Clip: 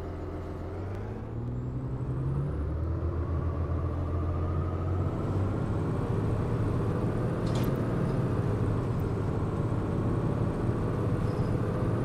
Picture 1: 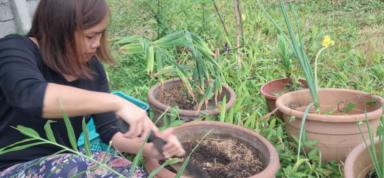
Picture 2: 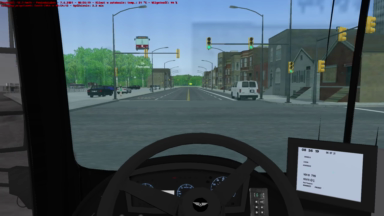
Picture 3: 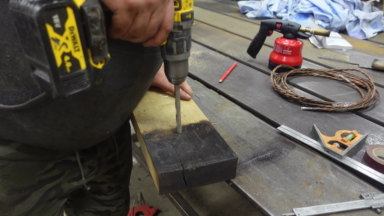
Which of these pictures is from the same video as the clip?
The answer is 2